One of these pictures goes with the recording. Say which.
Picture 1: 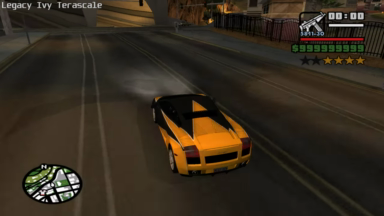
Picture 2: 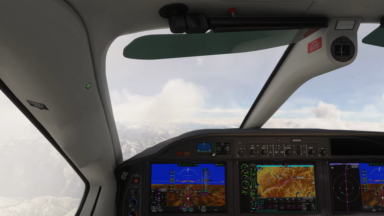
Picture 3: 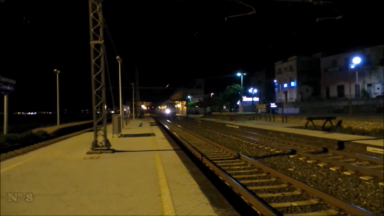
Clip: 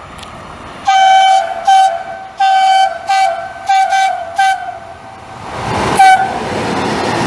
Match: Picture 3